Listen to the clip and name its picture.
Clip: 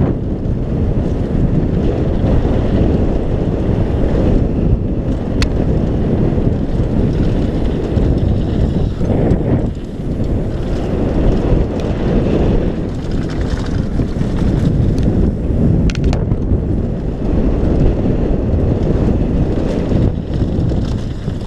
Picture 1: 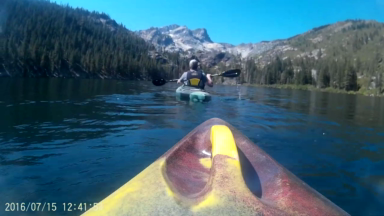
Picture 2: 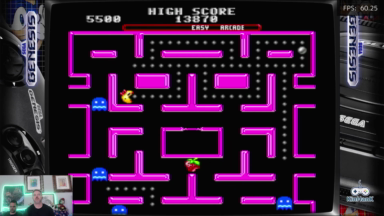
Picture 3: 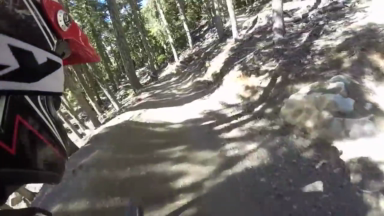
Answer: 3